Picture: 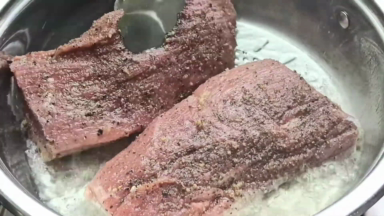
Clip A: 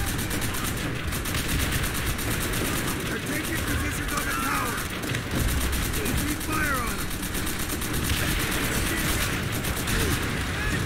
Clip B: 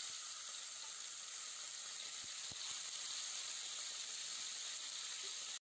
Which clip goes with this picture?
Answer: B